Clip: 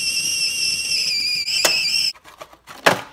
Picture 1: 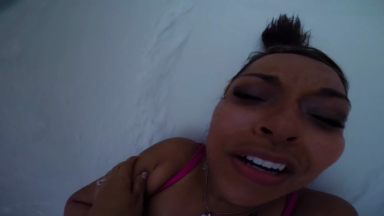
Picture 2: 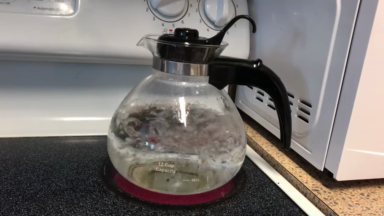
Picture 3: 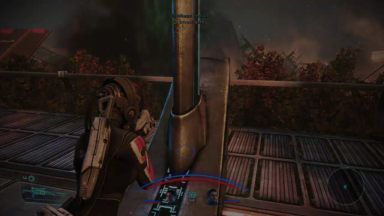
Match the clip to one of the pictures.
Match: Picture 2